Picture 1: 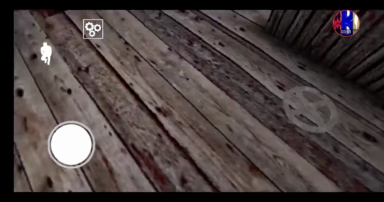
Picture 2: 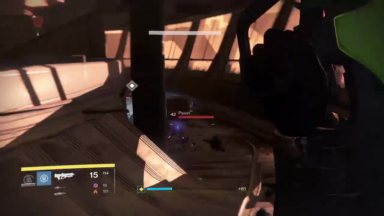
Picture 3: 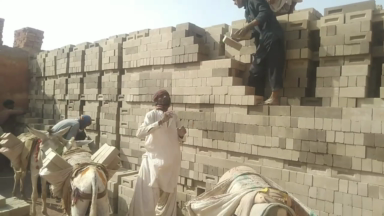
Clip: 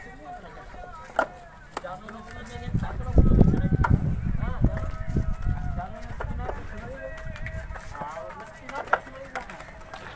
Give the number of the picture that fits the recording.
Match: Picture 3